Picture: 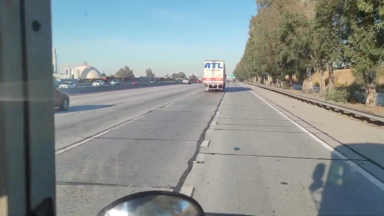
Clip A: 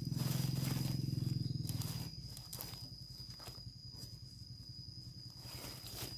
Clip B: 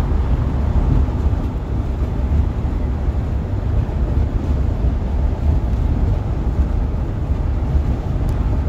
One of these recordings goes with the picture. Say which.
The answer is B